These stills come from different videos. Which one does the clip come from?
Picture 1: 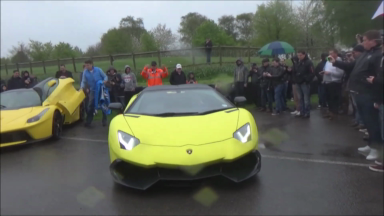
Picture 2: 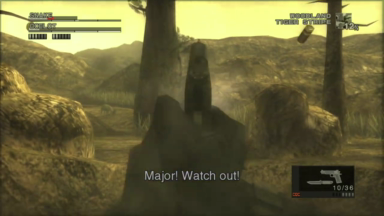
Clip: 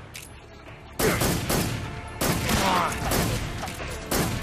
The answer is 2